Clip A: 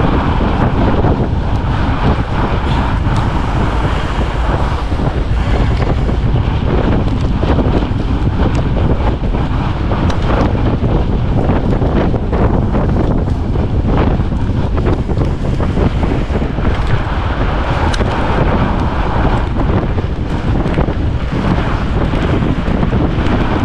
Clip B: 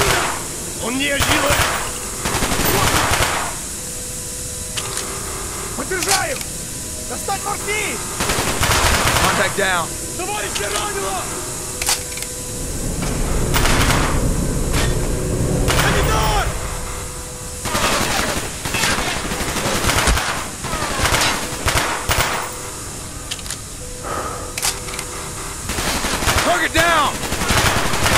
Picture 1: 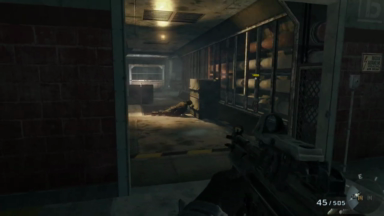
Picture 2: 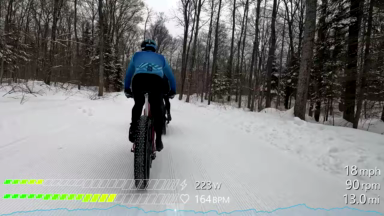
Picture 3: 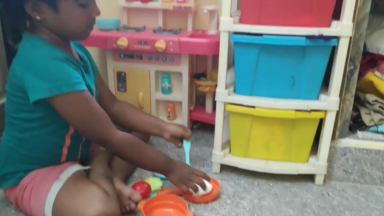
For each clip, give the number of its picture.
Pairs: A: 2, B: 1